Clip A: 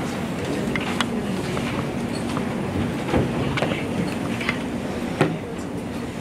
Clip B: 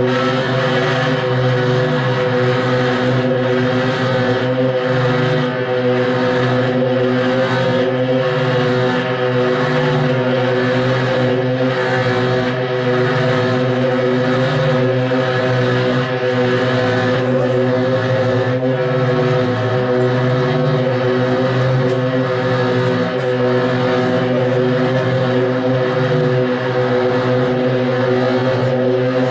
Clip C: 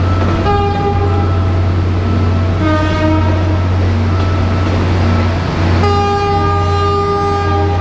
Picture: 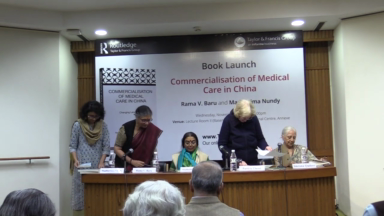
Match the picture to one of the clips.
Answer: A